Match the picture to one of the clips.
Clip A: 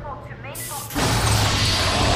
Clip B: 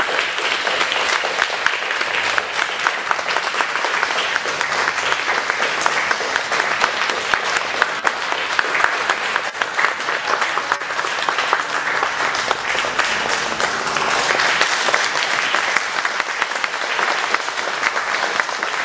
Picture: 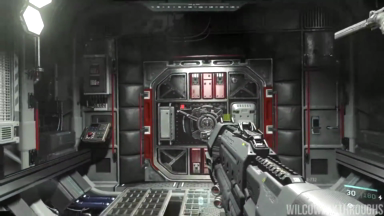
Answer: A